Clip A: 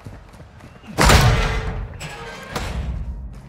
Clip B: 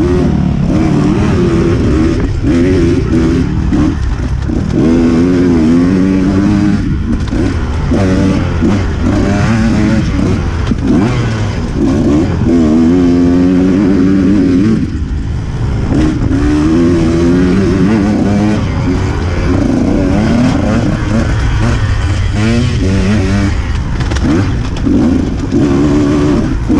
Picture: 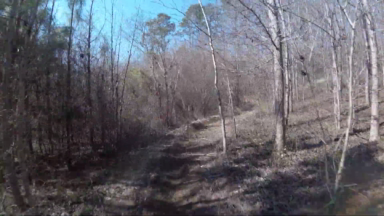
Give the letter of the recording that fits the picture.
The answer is B